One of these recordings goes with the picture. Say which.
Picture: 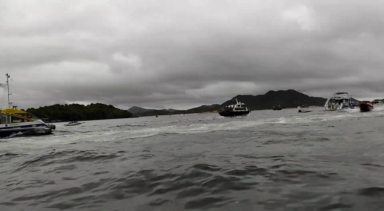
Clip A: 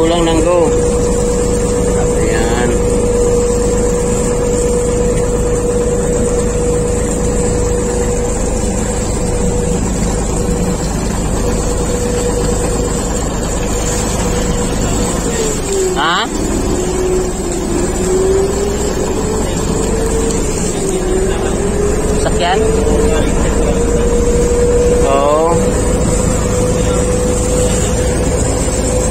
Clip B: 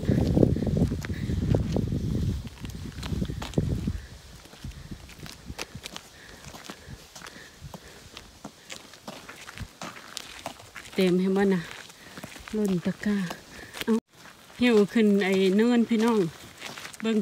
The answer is A